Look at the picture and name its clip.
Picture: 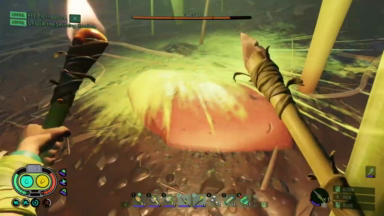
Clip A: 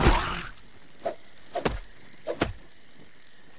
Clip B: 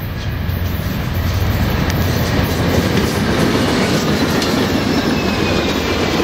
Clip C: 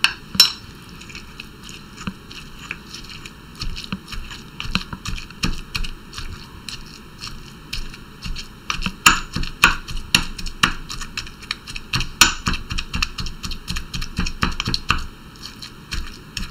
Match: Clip A